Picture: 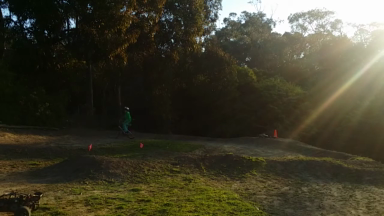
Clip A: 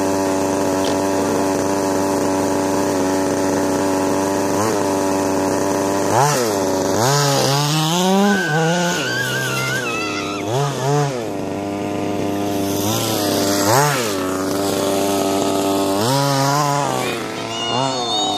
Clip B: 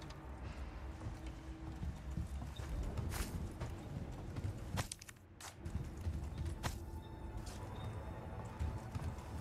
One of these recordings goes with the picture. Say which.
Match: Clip A